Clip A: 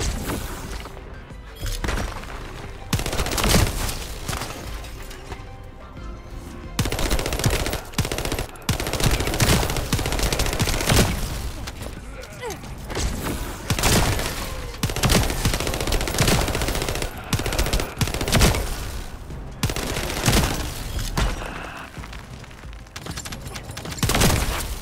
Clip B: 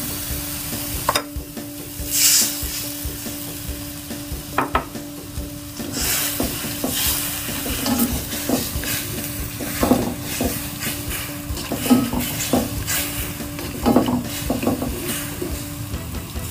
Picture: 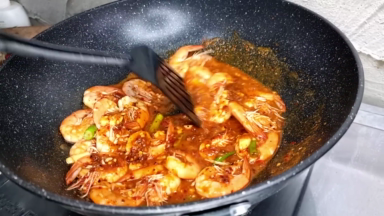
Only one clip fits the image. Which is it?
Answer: B